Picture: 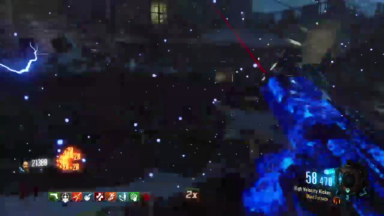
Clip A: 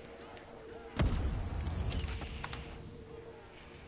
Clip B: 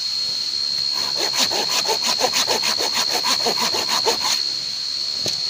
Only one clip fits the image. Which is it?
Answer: A